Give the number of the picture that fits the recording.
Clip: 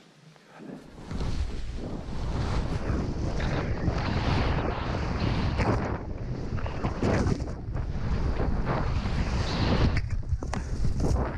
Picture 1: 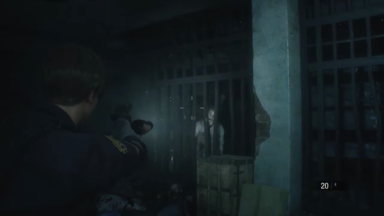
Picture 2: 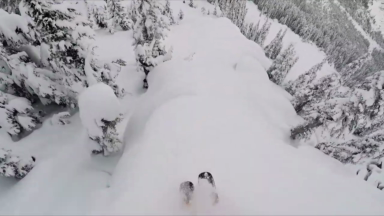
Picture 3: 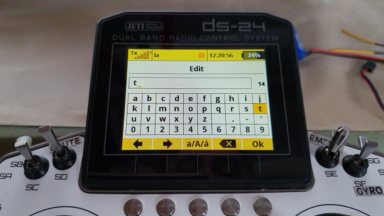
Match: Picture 2